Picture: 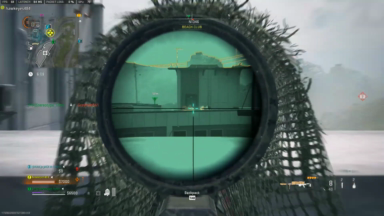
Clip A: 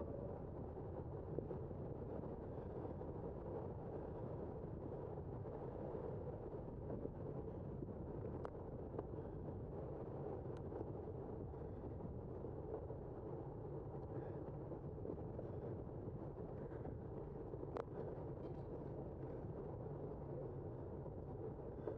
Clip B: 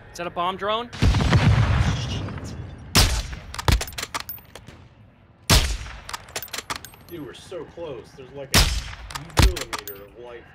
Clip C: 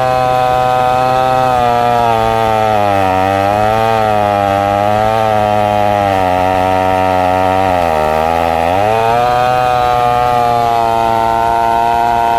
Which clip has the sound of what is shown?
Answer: B